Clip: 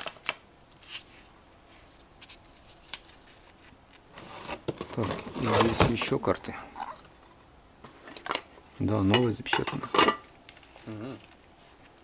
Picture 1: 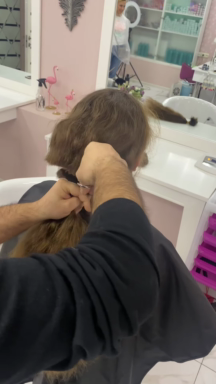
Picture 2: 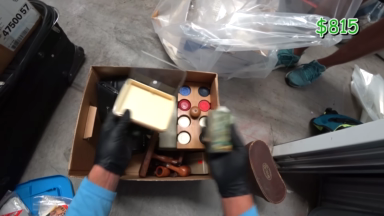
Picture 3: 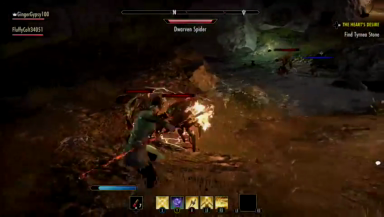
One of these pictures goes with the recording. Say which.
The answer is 2